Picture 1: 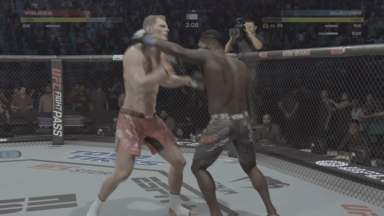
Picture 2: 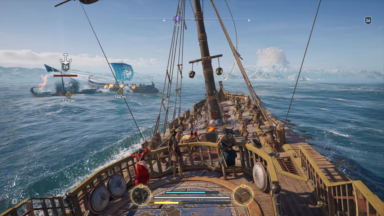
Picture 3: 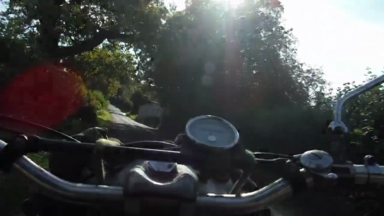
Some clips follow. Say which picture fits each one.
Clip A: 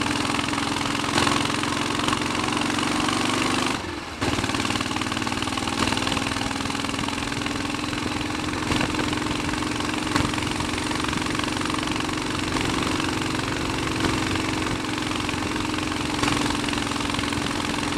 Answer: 3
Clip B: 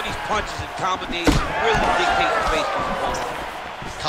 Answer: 1